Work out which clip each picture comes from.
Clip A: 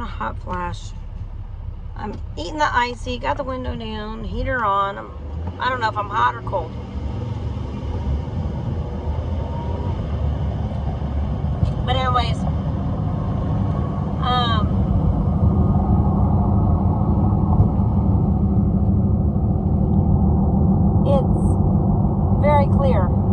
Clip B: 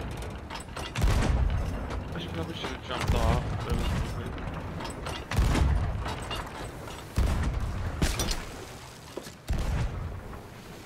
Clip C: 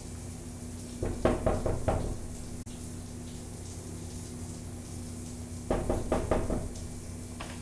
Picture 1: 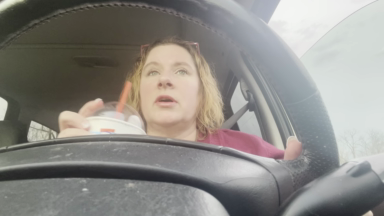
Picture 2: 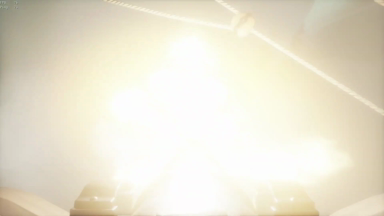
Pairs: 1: A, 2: B